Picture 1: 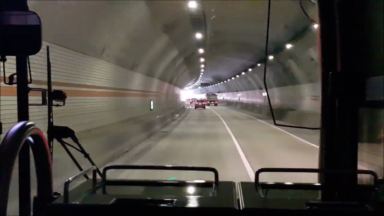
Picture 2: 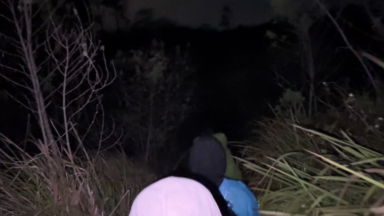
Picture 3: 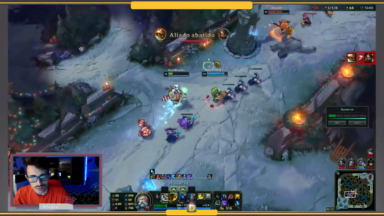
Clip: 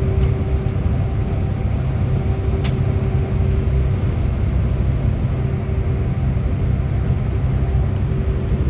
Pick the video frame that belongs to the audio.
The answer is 1